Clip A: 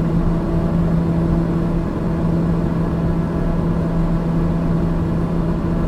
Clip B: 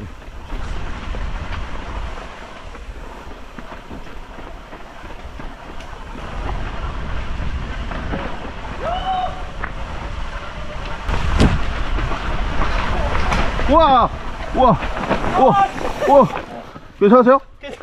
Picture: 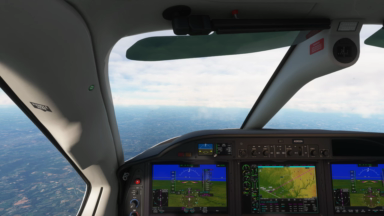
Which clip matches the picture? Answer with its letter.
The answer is A